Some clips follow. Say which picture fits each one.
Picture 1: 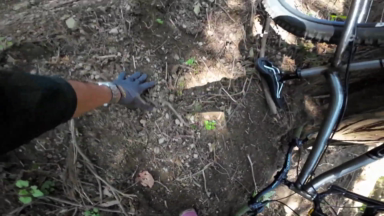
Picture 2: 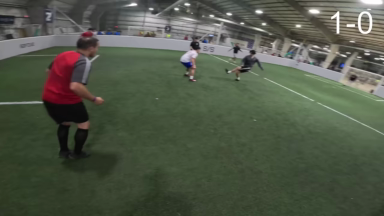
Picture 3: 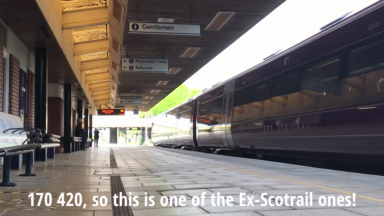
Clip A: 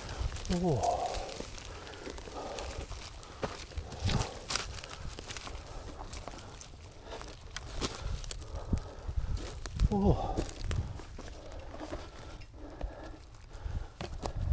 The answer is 1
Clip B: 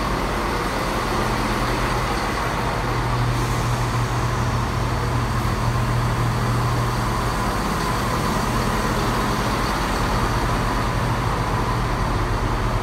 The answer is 3